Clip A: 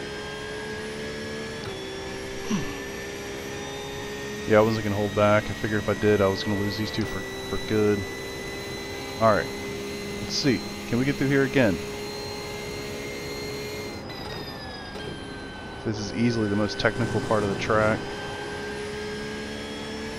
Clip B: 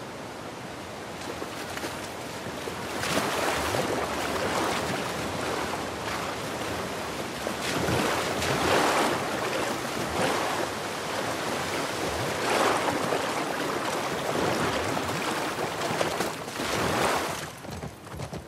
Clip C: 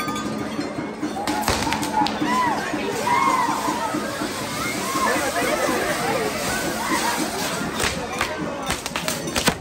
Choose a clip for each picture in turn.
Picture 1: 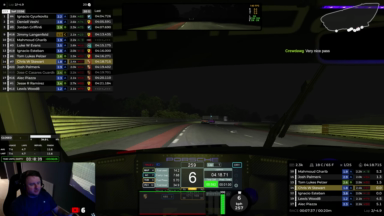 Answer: A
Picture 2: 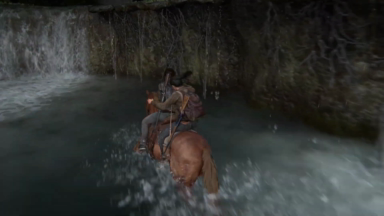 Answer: B